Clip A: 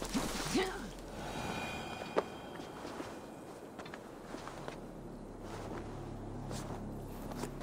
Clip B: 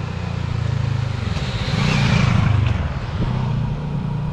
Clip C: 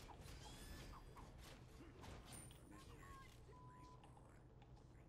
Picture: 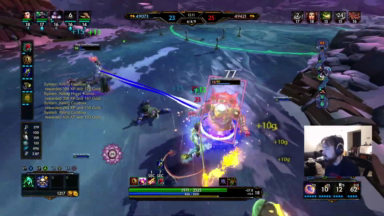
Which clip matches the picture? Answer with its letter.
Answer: C